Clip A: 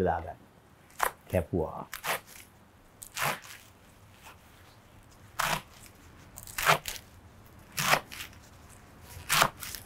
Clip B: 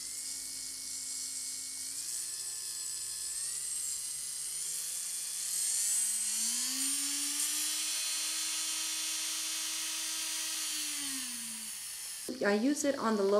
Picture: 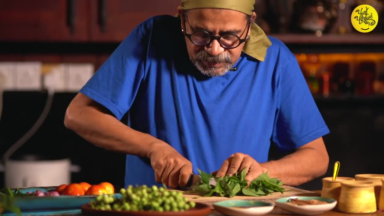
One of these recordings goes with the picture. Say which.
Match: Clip A